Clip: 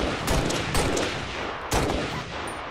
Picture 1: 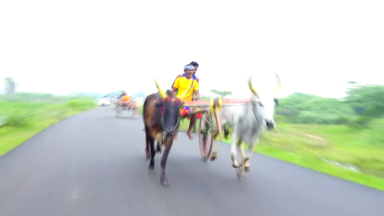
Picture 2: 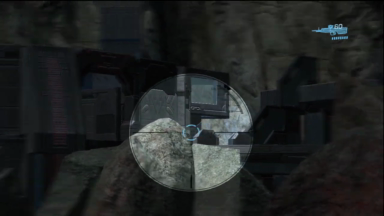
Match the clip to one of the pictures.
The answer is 2